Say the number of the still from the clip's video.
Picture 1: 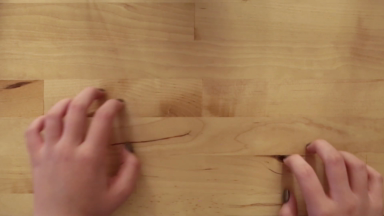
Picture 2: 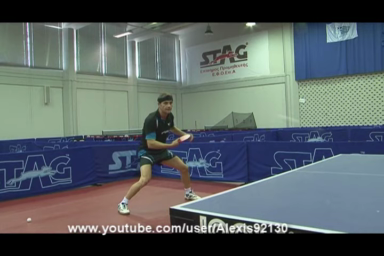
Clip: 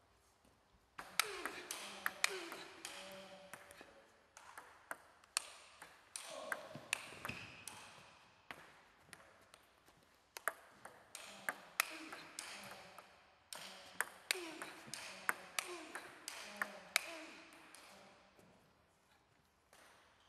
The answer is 2